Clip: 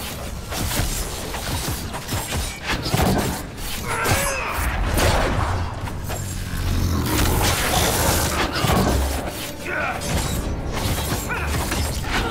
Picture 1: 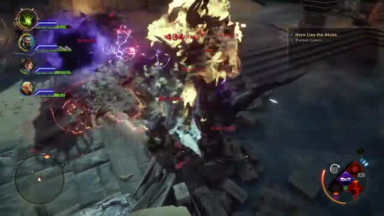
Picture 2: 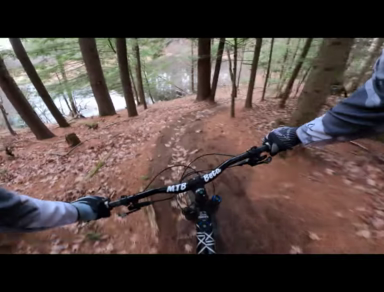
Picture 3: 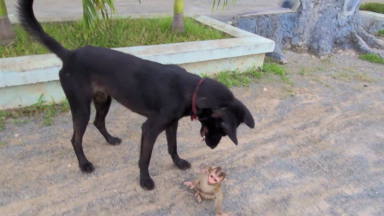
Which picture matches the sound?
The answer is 1